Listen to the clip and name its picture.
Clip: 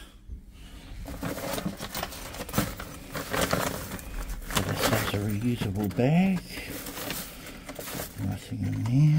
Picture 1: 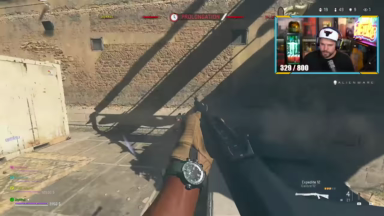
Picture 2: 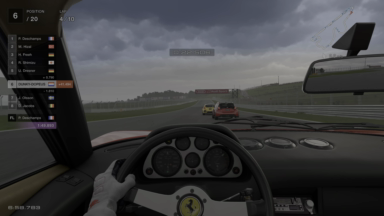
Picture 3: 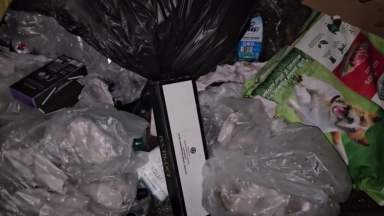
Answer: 3